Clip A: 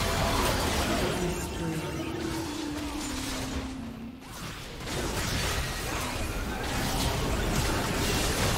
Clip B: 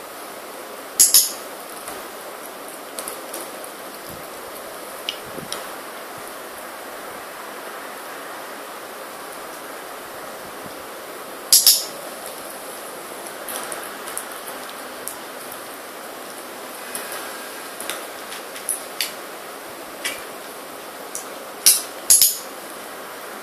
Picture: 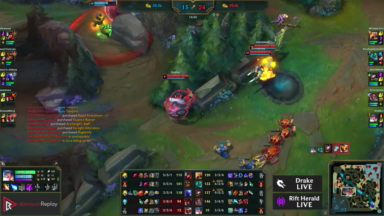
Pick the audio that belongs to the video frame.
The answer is A